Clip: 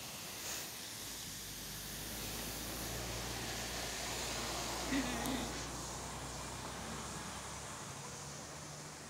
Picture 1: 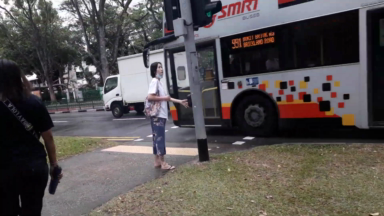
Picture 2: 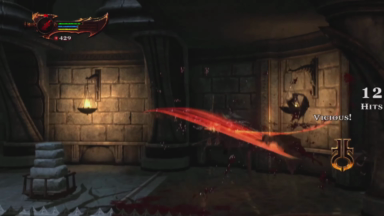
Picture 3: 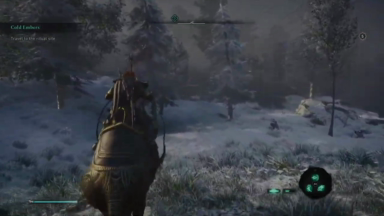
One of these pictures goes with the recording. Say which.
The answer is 1